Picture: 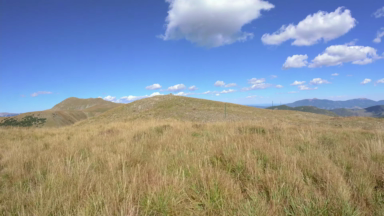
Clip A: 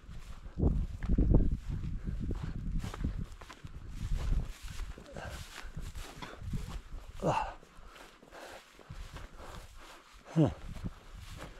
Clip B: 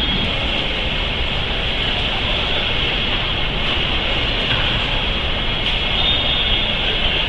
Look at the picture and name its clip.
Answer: A